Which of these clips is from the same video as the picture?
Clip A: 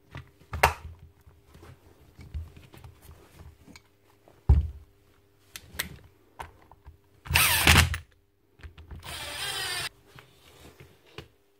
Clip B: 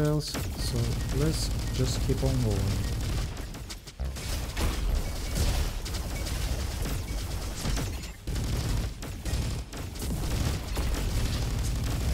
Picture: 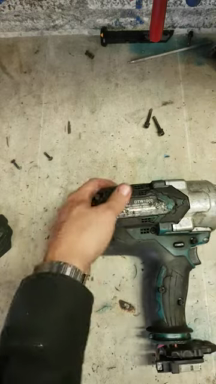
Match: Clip A